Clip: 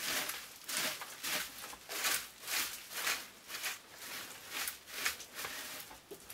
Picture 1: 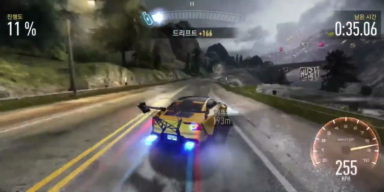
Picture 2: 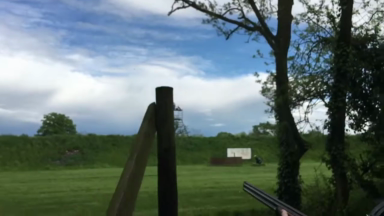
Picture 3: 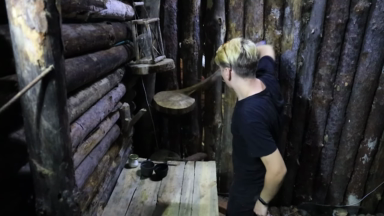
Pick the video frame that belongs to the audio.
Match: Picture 3